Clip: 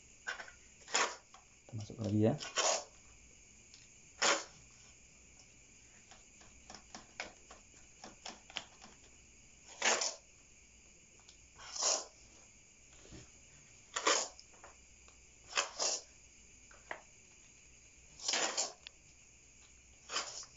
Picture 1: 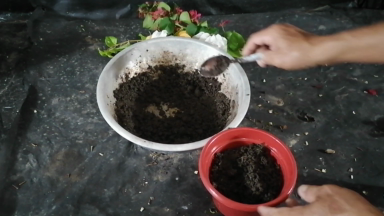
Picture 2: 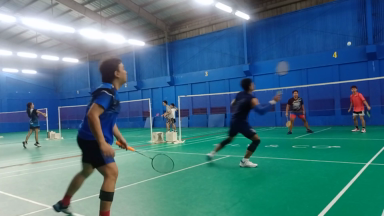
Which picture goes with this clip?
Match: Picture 1